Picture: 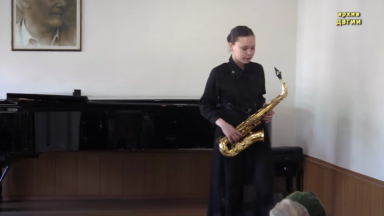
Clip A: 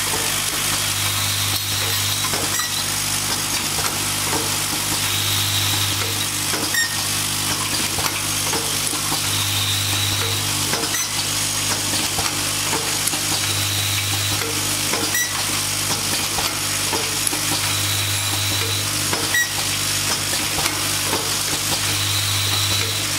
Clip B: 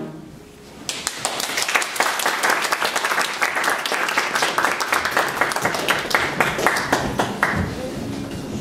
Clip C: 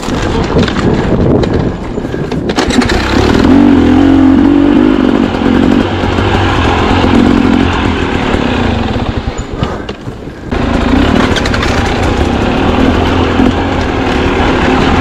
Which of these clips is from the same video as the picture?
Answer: B